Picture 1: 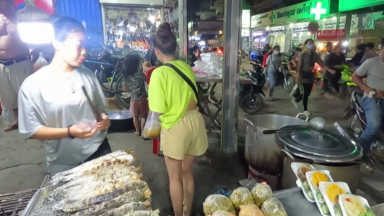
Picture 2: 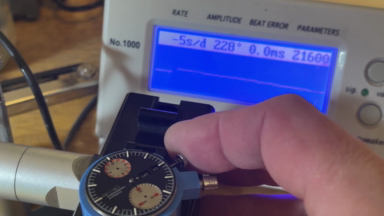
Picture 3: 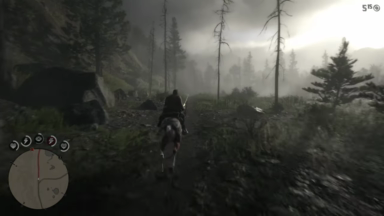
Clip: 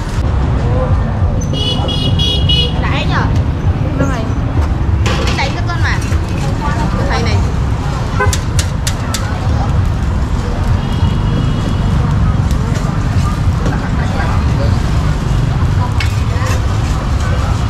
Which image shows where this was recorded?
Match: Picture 1